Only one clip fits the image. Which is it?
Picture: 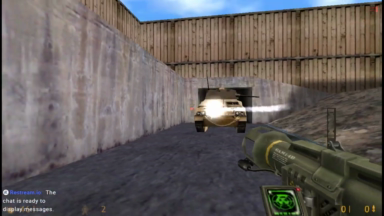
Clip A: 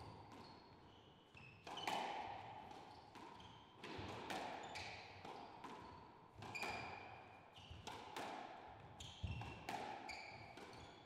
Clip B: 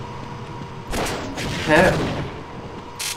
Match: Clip B